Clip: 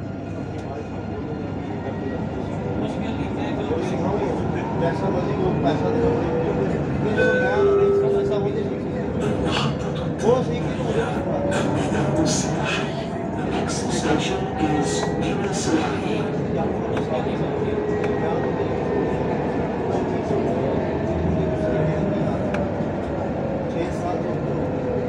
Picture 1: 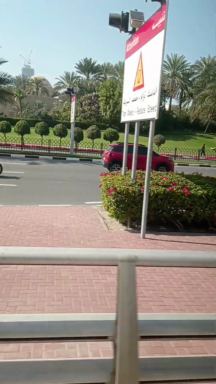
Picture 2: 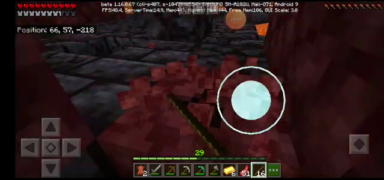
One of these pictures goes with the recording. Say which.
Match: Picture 1